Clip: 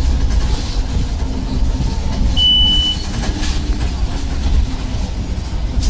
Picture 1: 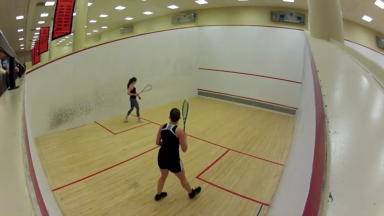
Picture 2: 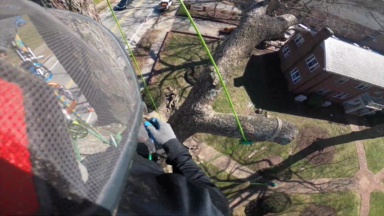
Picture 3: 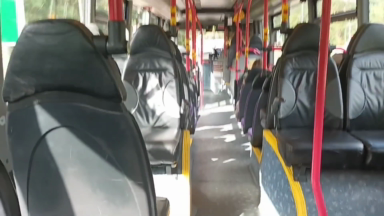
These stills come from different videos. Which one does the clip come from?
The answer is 3